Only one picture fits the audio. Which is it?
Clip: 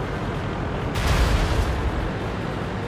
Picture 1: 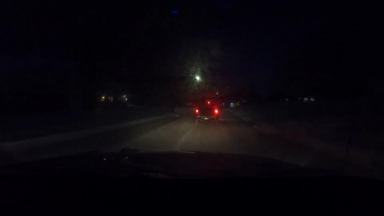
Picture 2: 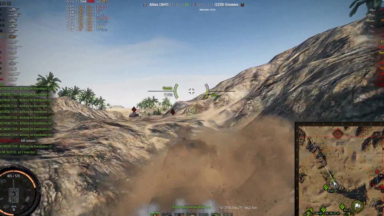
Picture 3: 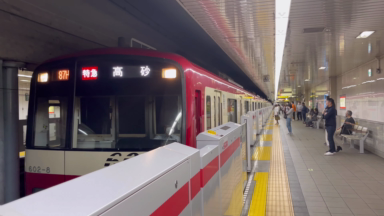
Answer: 2